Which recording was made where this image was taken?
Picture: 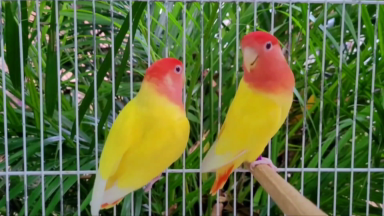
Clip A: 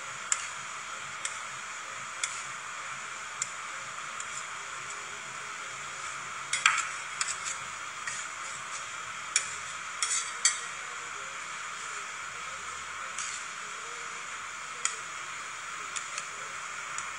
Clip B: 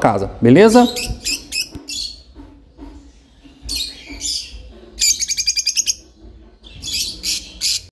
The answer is B